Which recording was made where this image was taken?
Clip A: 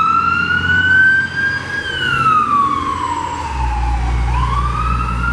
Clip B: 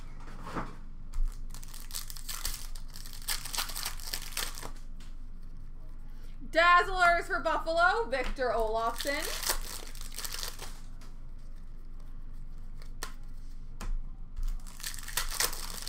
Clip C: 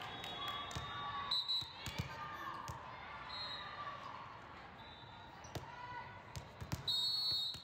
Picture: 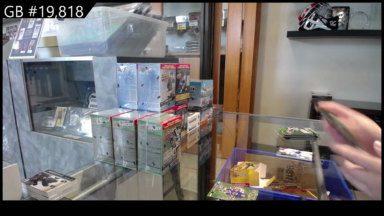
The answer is B